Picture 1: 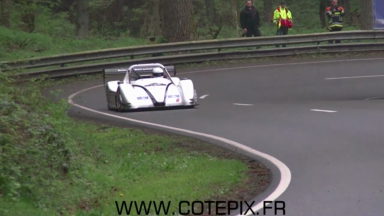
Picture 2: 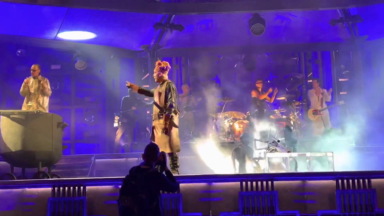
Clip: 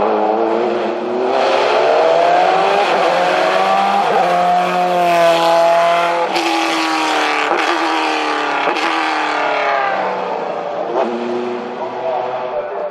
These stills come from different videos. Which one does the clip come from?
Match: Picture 1